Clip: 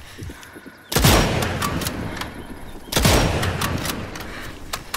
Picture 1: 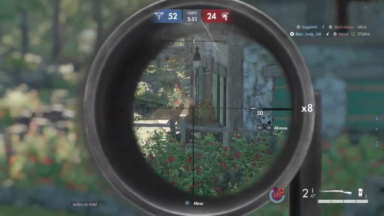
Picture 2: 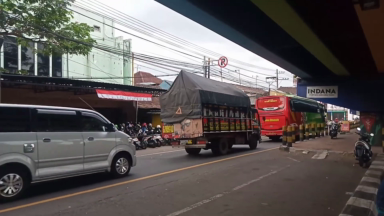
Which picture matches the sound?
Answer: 1